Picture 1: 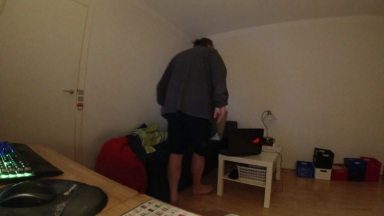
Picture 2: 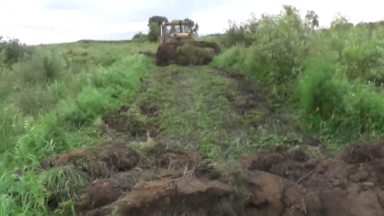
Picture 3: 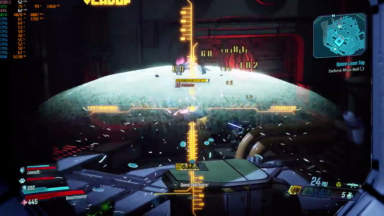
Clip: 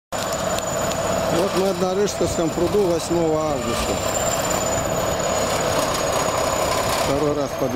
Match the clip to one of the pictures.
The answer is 2